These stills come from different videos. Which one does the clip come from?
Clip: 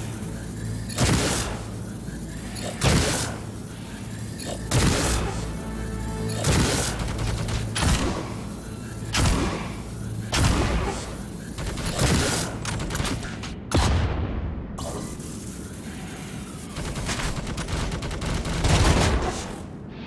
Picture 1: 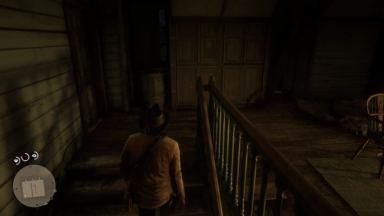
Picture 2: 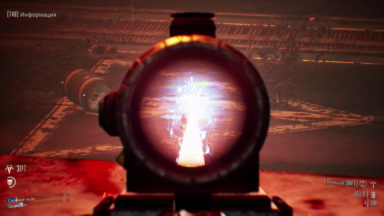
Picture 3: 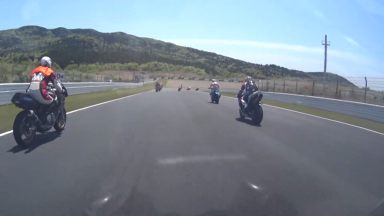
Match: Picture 2